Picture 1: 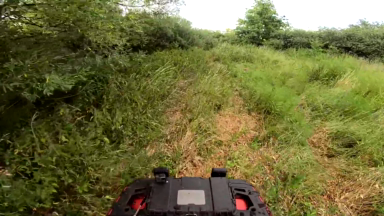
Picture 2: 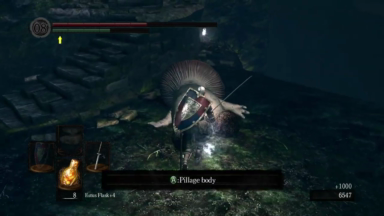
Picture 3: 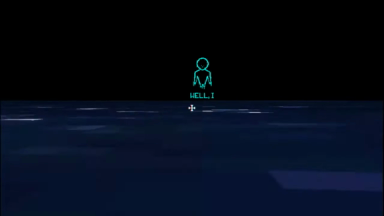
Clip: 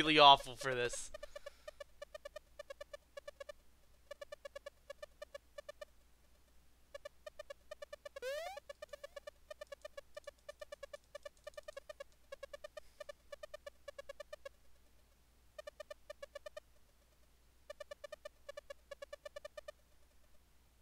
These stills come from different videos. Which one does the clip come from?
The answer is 3